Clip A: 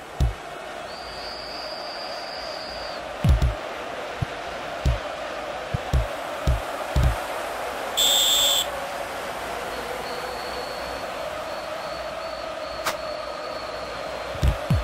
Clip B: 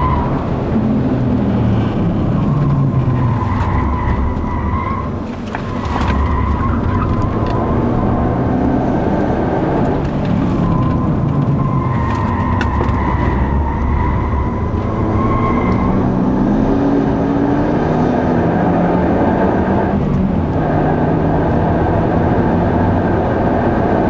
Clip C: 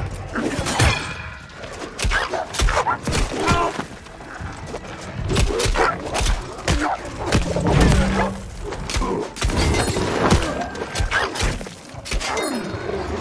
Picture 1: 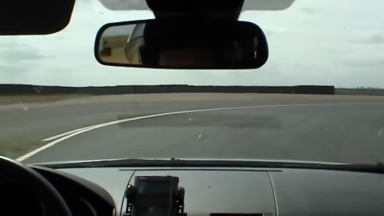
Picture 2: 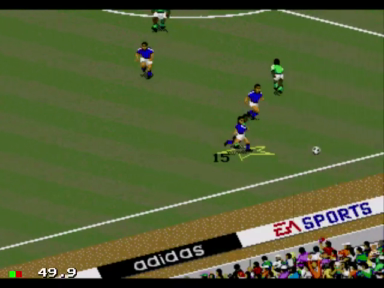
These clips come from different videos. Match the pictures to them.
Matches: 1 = B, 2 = A